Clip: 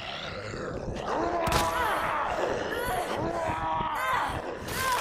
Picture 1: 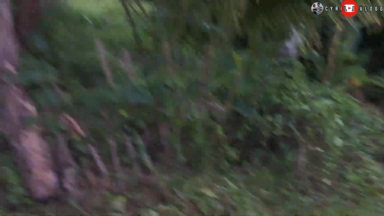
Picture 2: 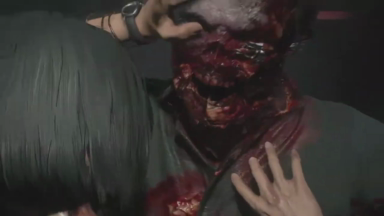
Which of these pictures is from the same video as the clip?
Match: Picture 2